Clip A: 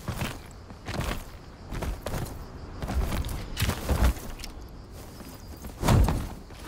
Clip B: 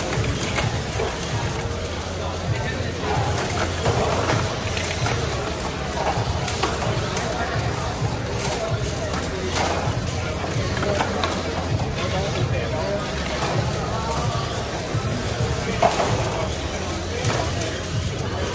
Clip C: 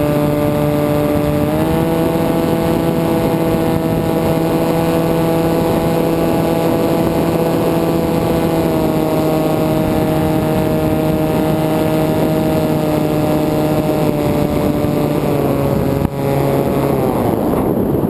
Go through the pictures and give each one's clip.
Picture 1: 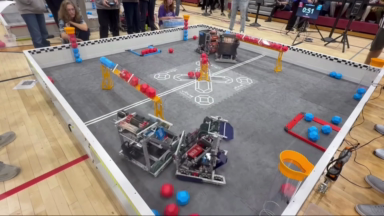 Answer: B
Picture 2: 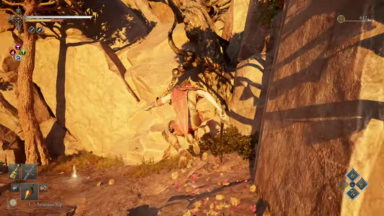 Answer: A